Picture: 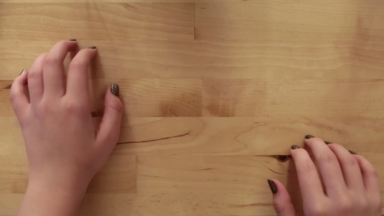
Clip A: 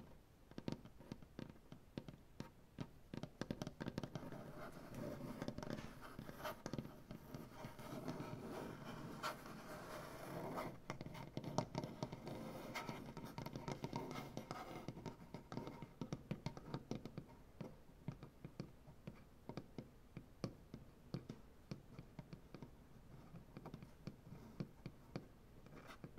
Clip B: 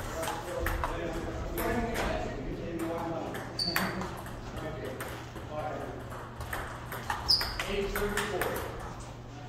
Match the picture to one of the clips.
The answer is A